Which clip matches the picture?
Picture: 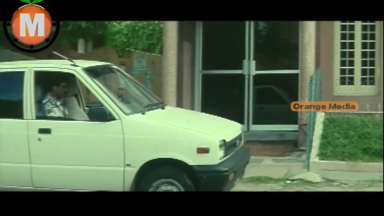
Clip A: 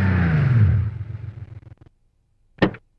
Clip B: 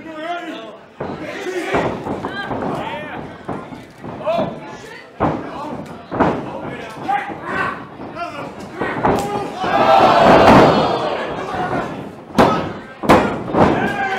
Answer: A